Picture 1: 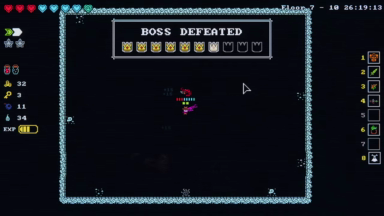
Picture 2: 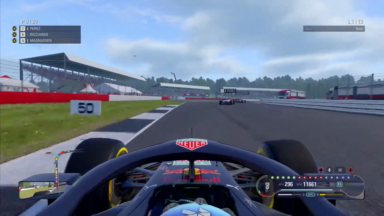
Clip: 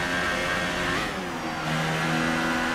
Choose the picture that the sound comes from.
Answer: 2